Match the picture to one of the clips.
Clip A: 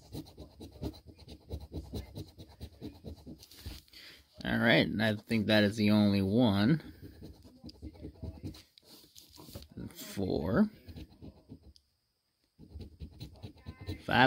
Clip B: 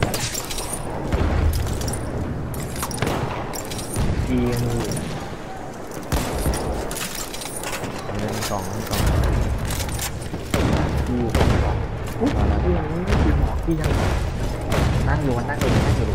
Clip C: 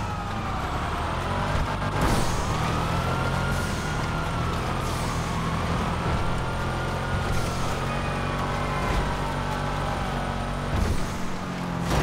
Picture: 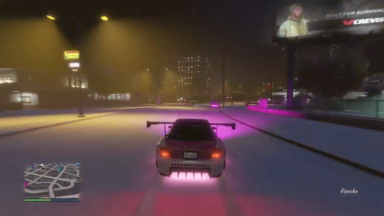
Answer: C